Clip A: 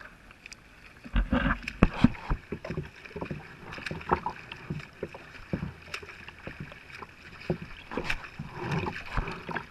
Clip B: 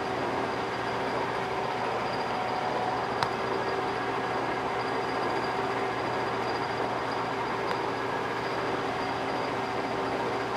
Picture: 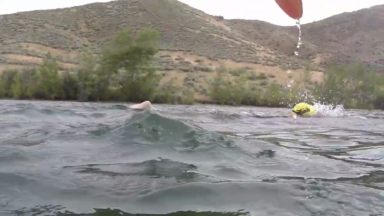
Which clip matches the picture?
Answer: A